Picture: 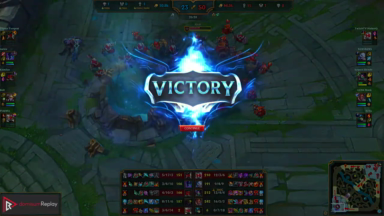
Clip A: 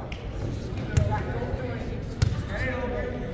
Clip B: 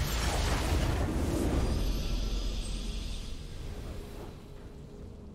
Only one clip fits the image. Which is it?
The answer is B